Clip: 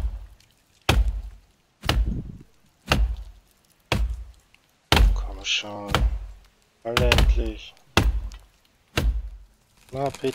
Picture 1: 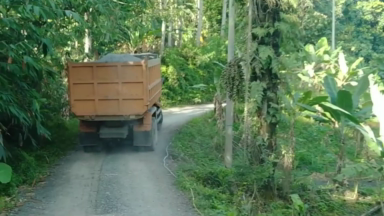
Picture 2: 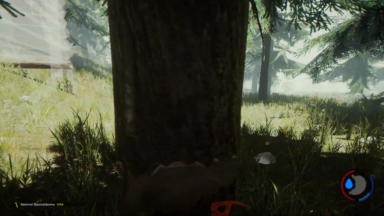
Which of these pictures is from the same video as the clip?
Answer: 2